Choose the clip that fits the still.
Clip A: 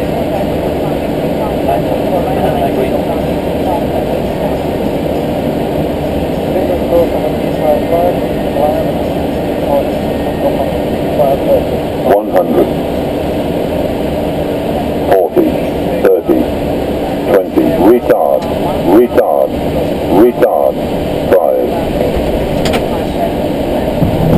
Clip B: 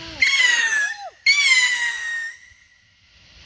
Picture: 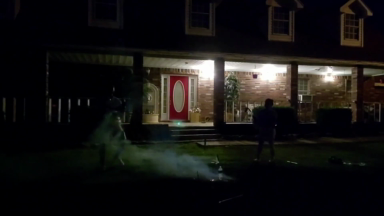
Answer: B